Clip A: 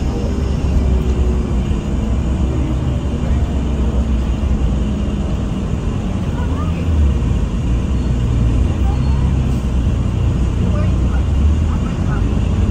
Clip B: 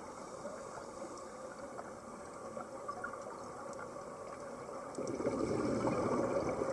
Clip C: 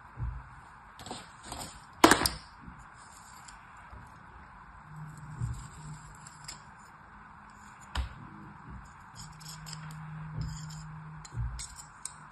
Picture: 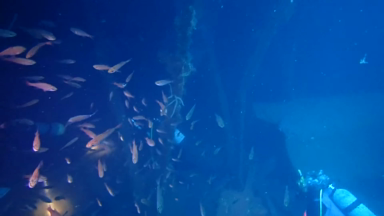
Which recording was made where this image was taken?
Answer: B